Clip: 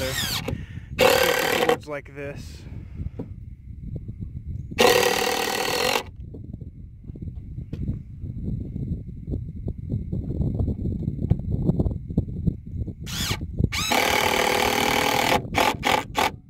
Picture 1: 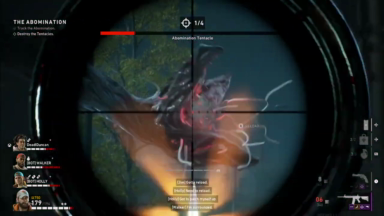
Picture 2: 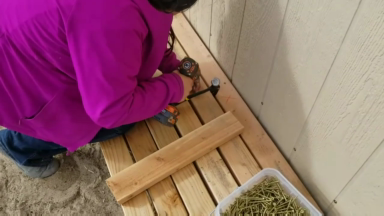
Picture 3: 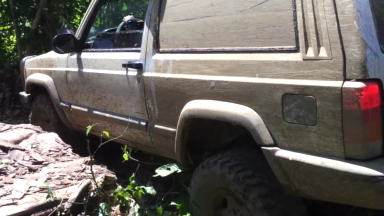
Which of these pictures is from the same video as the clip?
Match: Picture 2